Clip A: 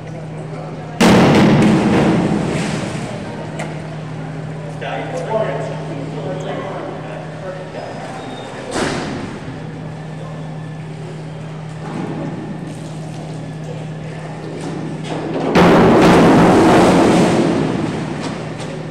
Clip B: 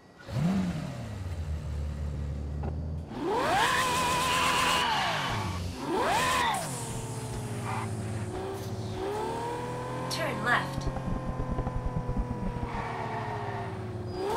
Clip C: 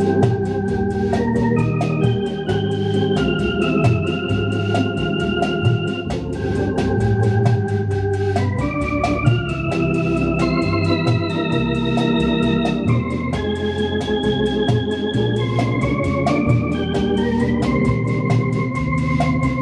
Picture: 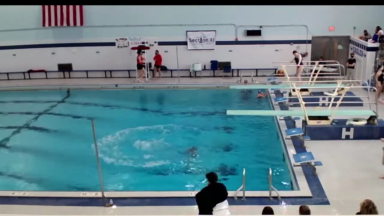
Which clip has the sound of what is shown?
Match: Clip A